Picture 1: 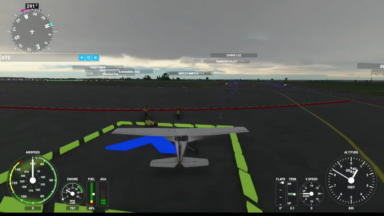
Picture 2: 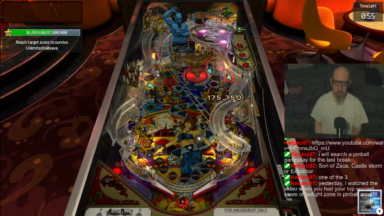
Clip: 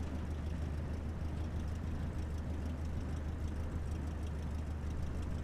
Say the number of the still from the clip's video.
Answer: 1